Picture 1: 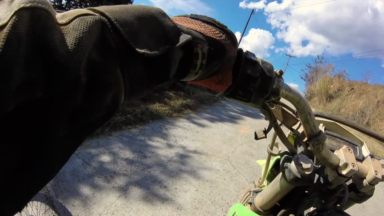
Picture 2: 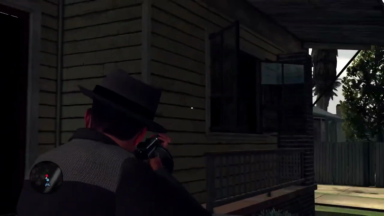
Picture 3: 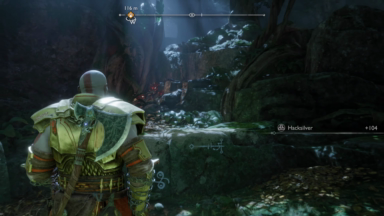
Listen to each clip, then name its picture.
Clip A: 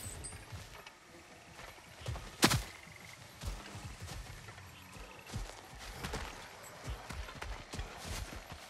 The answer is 3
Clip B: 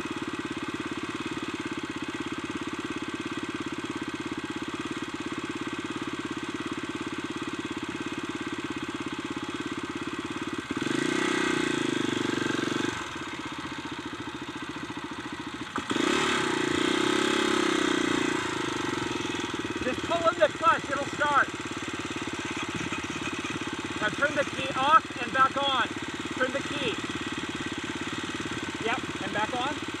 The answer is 1